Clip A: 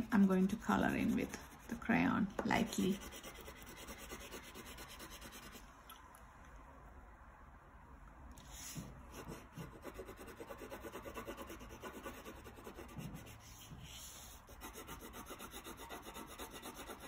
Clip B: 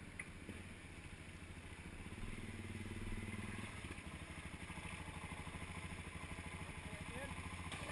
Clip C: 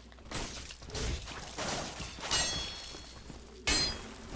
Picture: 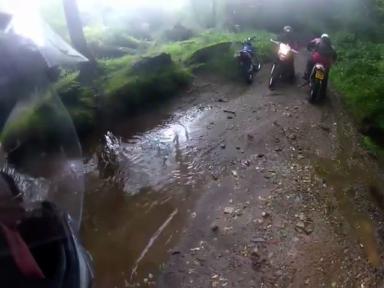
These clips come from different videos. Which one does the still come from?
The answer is B